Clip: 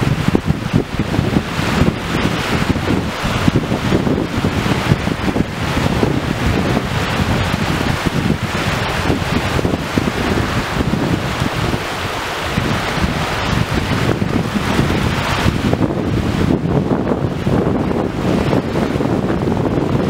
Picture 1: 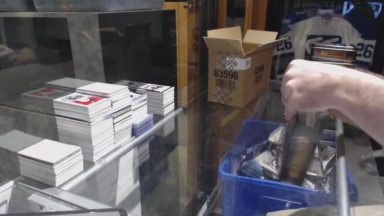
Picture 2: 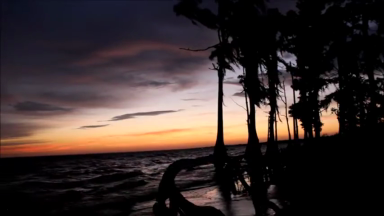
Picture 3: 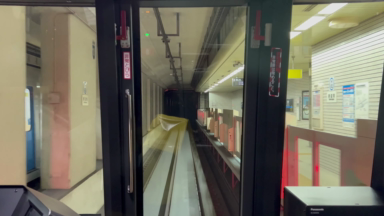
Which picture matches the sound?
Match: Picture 2